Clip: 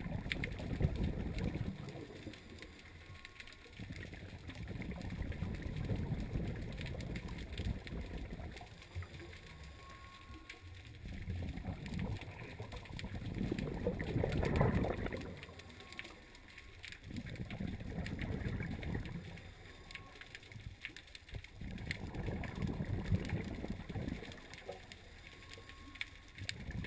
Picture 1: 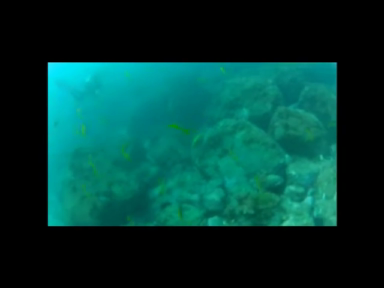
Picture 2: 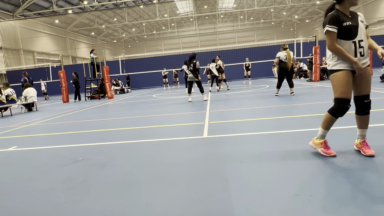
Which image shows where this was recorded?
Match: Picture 1